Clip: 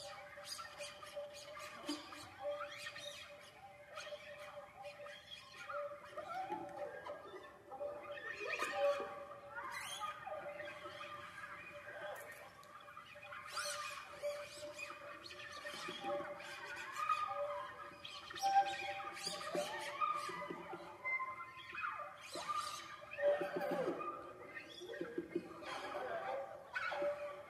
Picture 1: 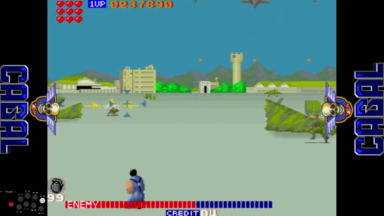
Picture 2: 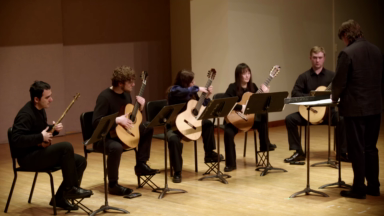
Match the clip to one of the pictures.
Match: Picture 2